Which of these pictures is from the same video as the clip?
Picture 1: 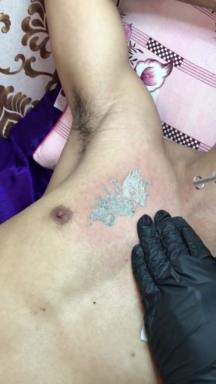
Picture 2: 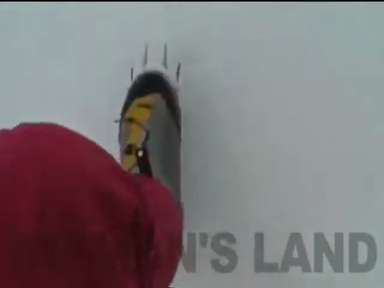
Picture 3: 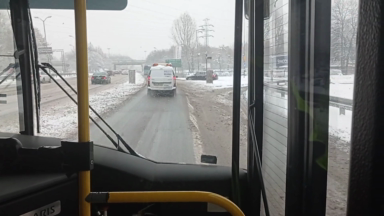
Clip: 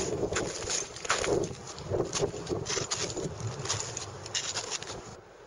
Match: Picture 2